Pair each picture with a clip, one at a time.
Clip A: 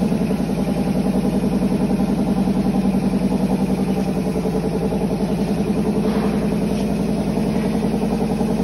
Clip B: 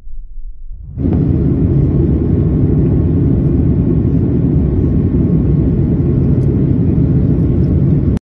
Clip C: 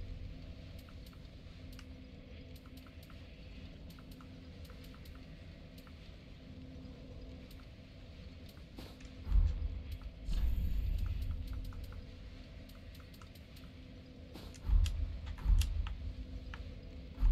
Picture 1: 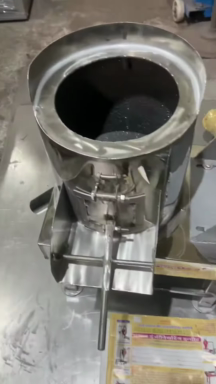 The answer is A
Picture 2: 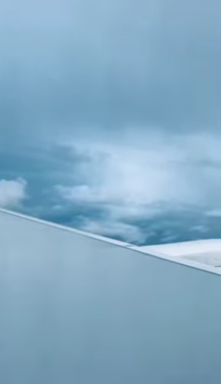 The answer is B